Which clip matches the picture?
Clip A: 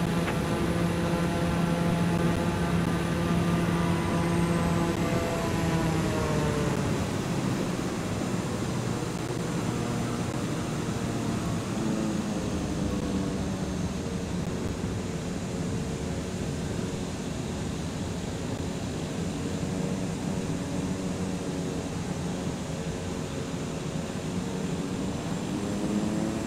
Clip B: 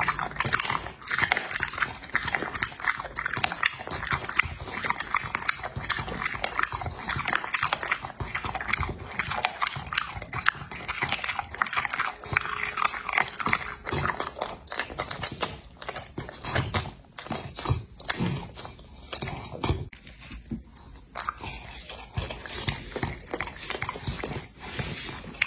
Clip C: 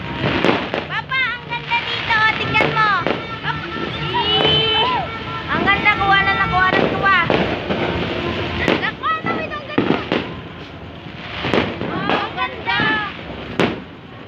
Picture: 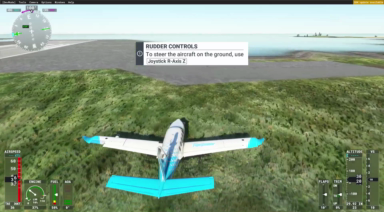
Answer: A